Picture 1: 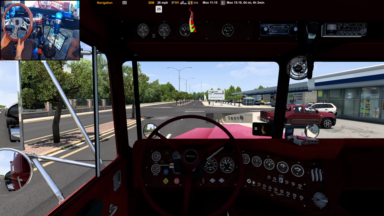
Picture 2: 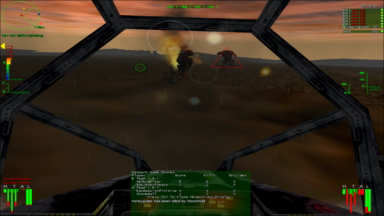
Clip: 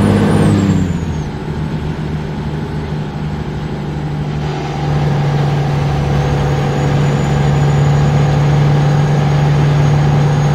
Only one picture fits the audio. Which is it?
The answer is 1